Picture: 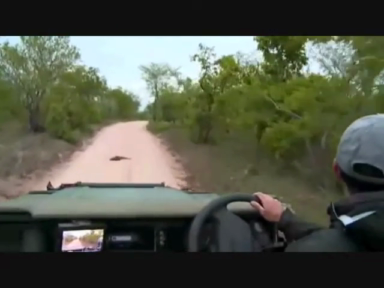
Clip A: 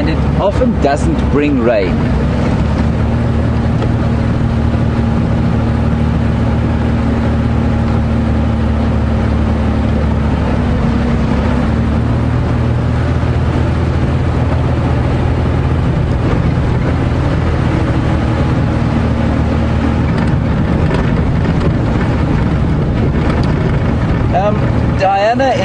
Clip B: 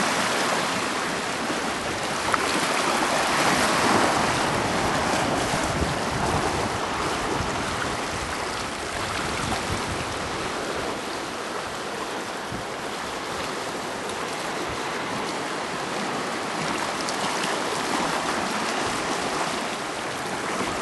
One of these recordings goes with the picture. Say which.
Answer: A